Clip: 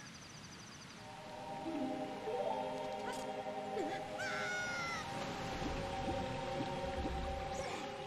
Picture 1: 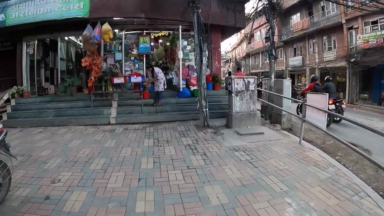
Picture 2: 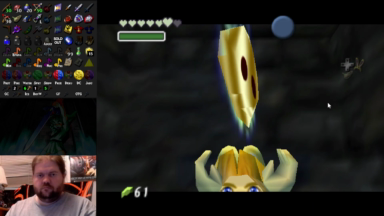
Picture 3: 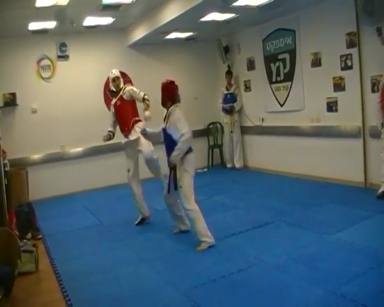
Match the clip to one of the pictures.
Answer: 2